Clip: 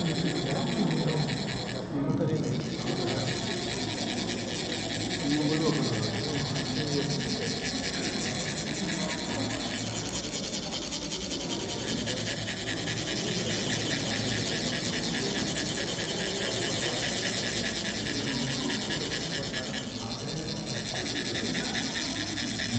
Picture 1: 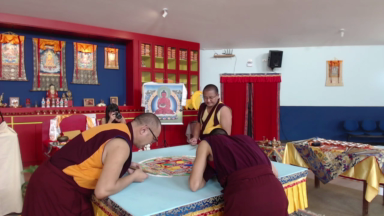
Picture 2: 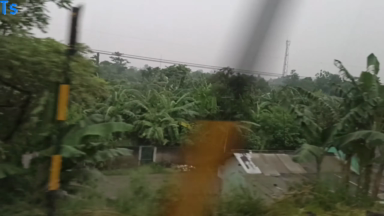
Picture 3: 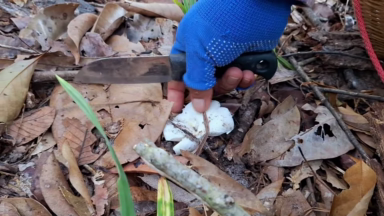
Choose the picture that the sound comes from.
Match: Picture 1